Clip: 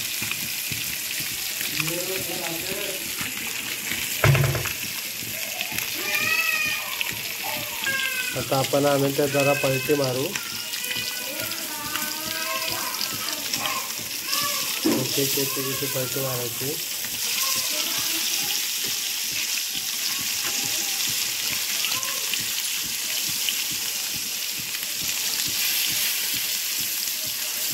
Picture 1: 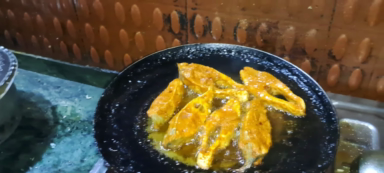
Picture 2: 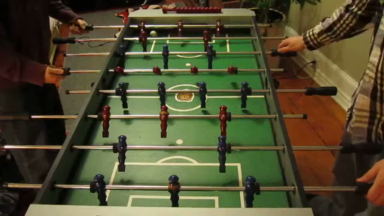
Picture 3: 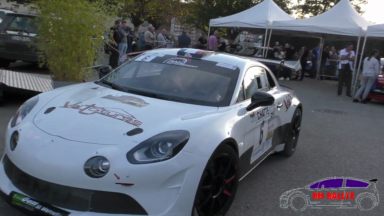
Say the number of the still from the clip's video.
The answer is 1